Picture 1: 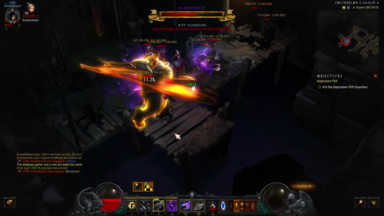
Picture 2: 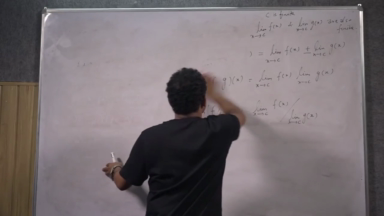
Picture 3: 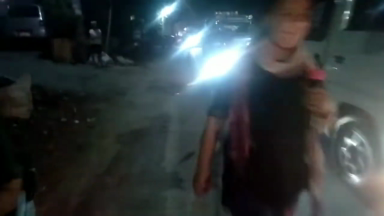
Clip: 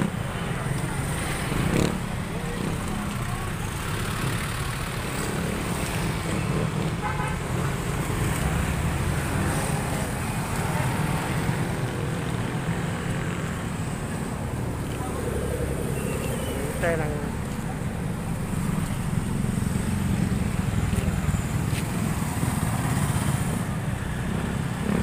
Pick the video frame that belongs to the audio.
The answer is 3